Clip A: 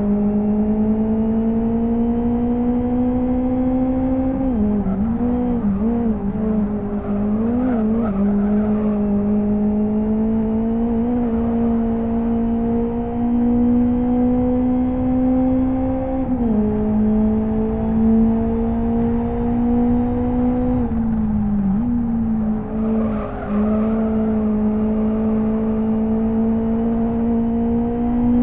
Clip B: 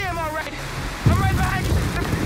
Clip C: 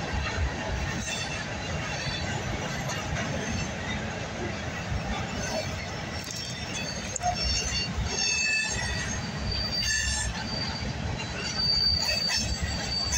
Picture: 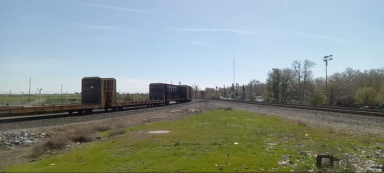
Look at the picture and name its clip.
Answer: C